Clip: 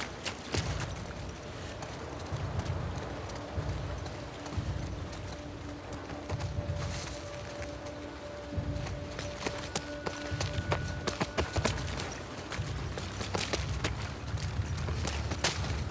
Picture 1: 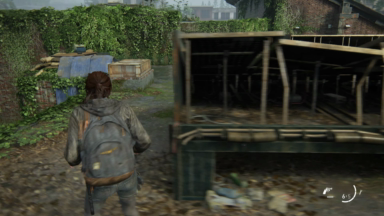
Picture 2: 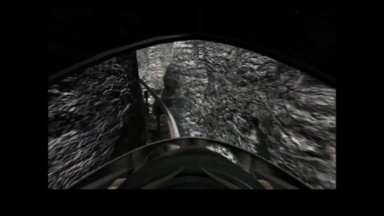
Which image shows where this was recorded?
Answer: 1